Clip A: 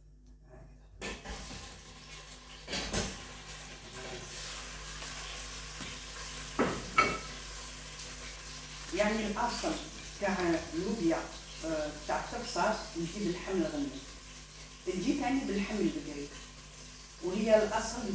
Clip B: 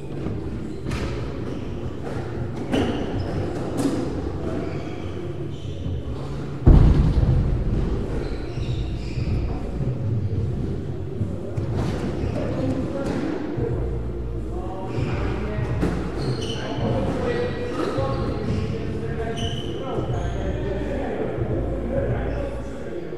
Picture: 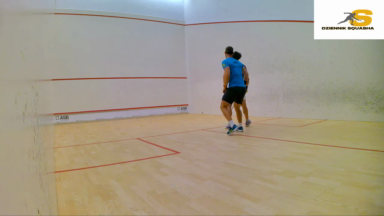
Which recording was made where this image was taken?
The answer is B